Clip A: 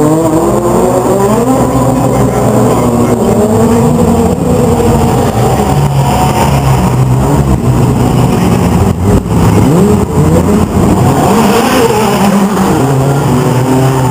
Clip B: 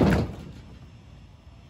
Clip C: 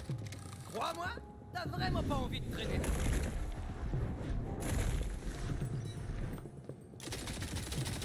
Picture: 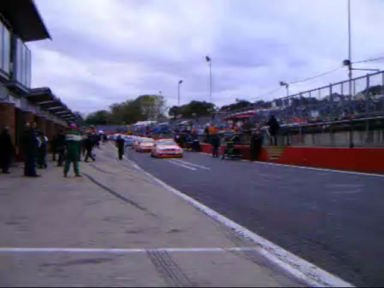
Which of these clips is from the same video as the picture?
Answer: A